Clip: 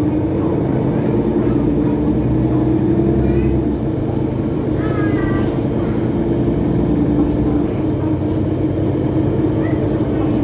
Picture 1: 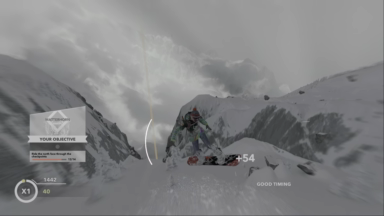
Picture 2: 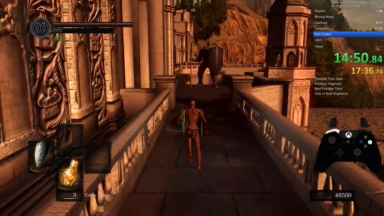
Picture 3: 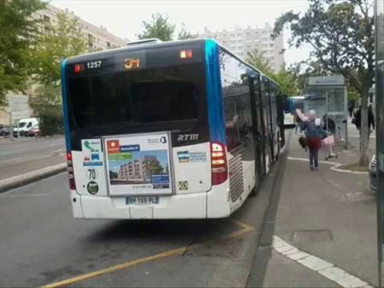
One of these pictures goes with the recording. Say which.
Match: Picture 3